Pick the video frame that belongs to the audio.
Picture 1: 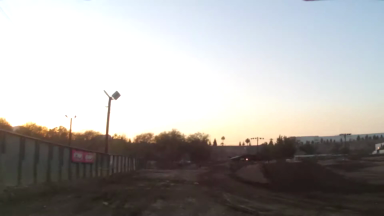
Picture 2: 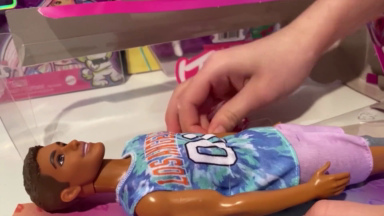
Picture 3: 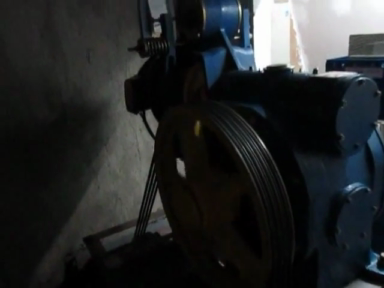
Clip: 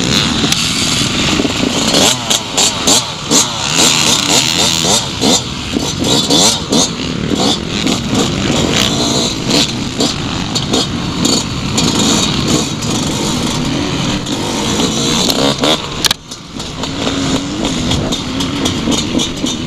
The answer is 1